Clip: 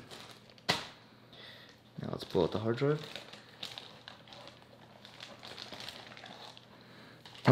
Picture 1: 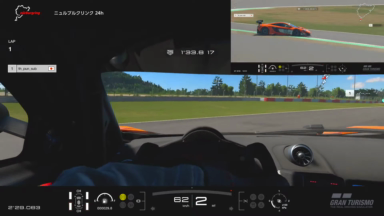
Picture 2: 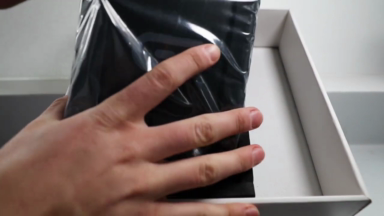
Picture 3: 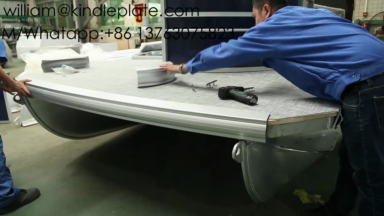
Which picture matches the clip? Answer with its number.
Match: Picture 2